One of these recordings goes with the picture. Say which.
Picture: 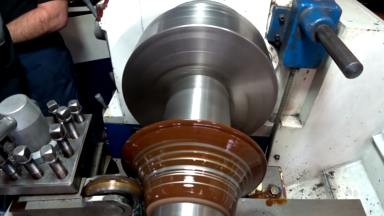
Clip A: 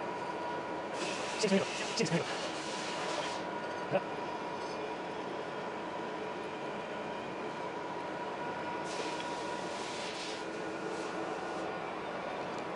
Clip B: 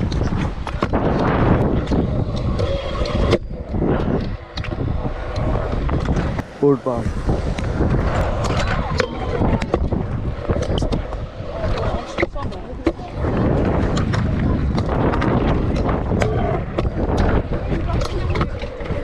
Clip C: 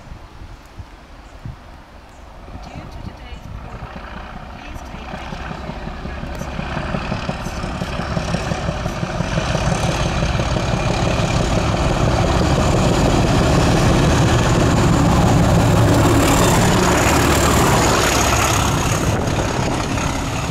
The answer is A